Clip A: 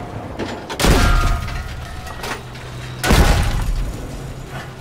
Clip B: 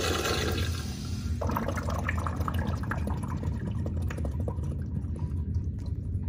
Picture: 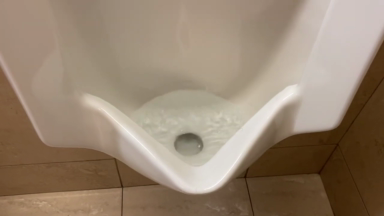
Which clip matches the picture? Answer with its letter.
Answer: B